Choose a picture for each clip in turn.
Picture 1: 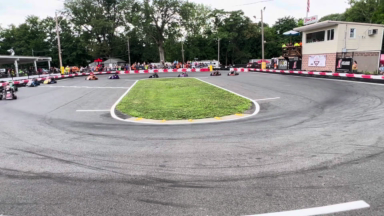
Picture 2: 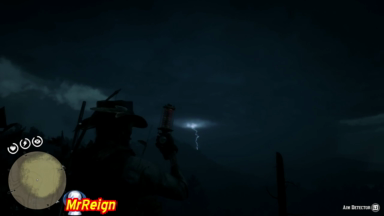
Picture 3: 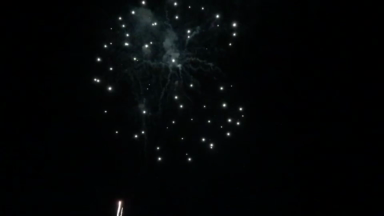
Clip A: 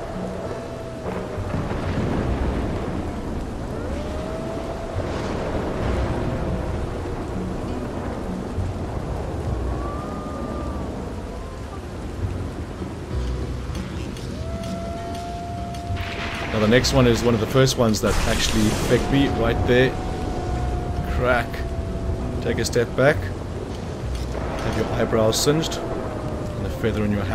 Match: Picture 2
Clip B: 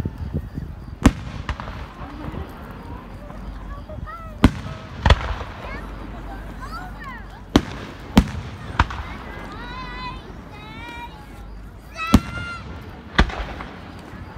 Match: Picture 3